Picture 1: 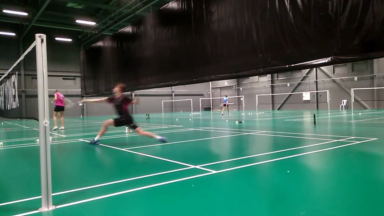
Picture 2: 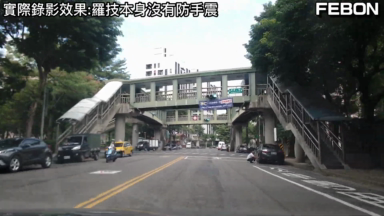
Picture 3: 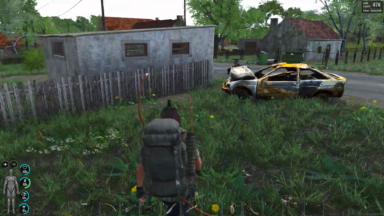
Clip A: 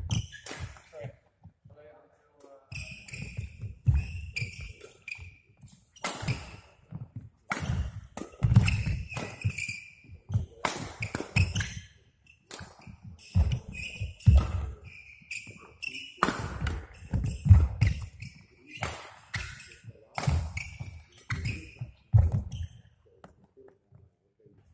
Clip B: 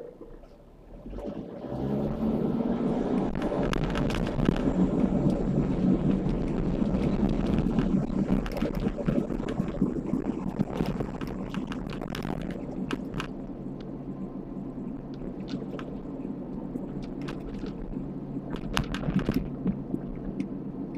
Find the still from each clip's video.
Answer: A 1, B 2